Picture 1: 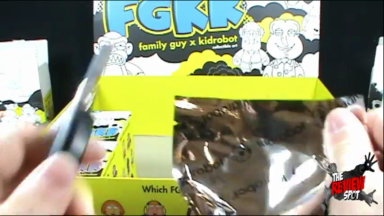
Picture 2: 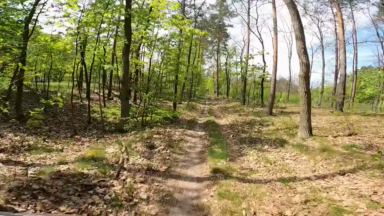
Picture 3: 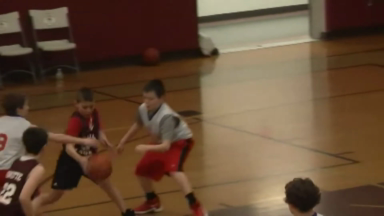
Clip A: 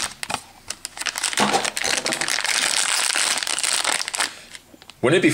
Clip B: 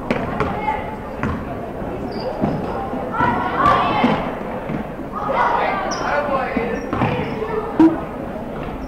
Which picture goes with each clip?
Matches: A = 1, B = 3